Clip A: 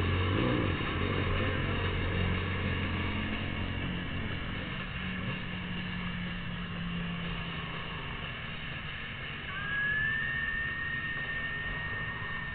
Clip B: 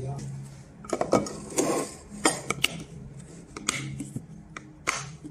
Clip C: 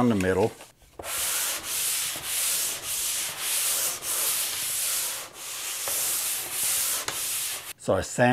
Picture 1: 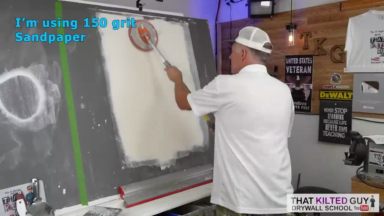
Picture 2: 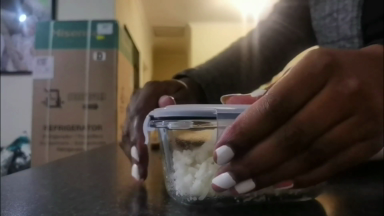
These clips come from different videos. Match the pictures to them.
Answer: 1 C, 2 B